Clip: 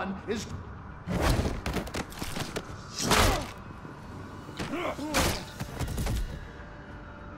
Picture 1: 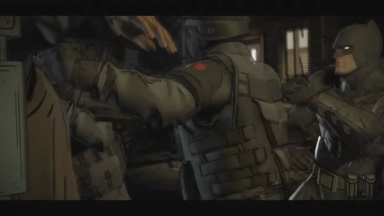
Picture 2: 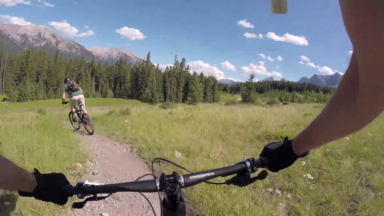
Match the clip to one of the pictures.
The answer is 1